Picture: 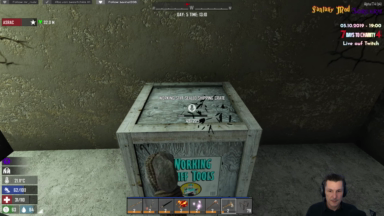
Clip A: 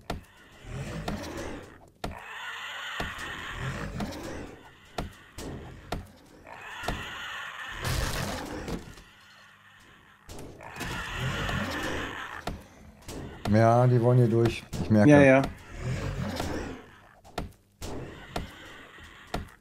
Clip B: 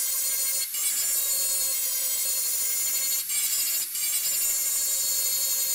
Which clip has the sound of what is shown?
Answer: A